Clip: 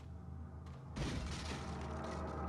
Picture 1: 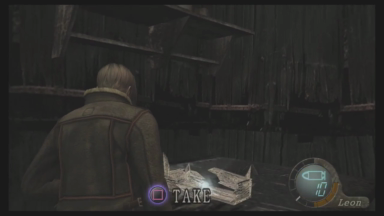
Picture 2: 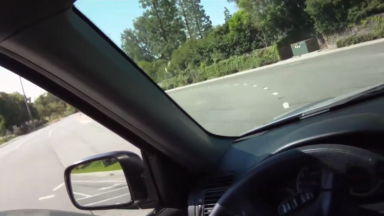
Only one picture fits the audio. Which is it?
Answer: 1